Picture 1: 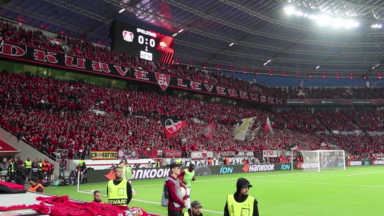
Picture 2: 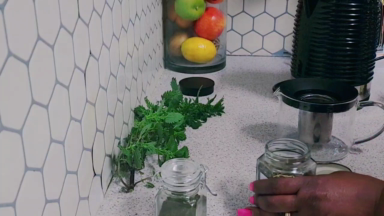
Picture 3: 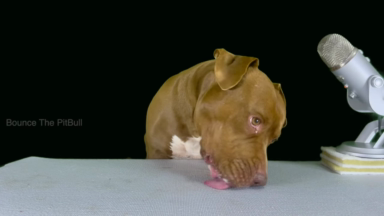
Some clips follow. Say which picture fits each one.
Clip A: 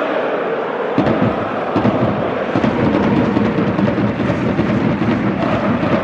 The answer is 1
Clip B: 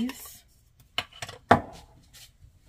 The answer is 2